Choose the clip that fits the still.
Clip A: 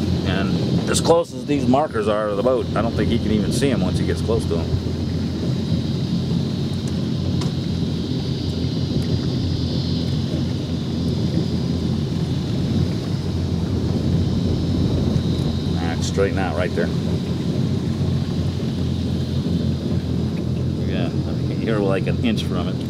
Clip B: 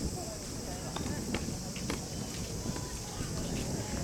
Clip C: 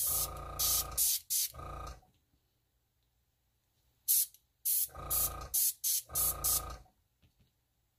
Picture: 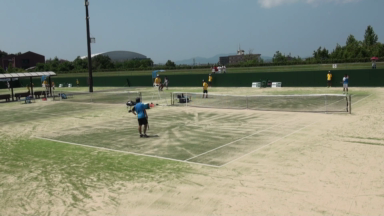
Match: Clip B